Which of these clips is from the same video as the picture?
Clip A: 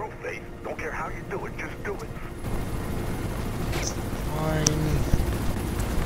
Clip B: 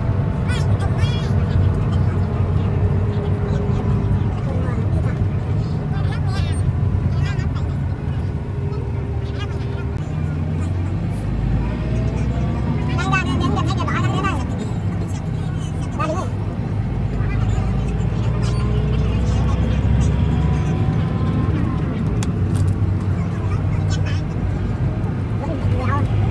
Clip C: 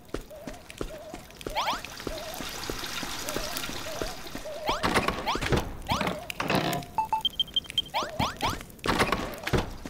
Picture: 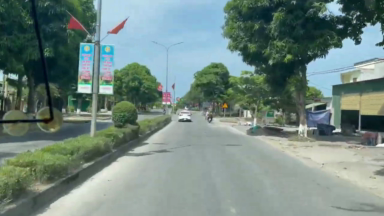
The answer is B